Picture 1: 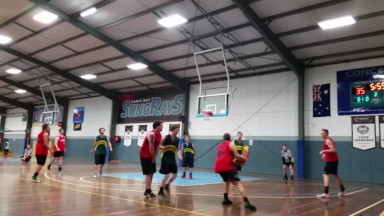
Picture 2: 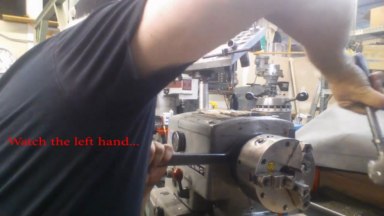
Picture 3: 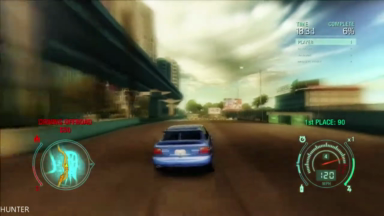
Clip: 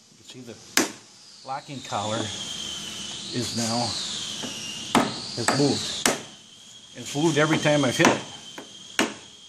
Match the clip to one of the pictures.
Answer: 2